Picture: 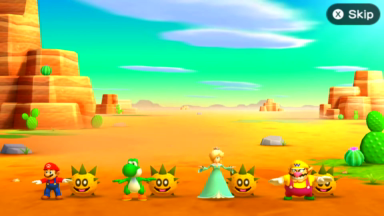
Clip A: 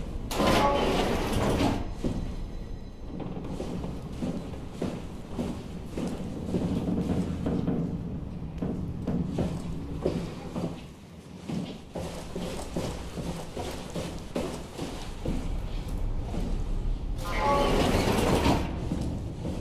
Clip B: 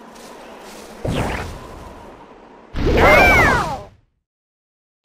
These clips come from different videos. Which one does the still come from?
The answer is B